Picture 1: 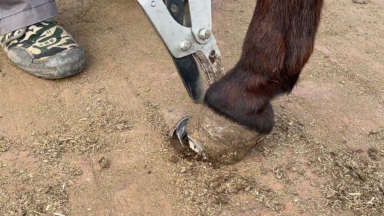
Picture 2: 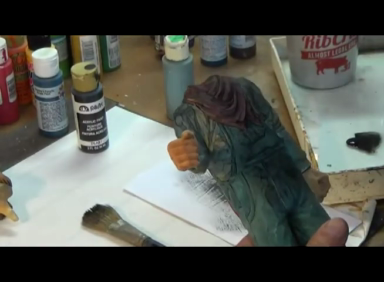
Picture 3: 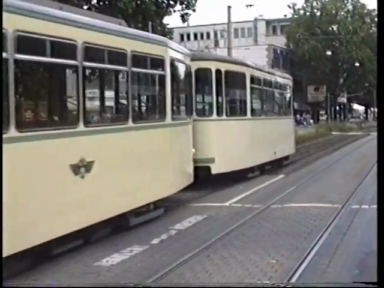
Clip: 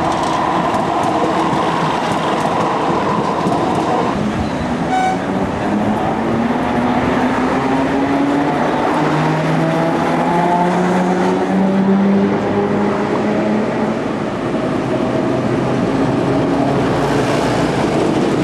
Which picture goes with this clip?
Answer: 3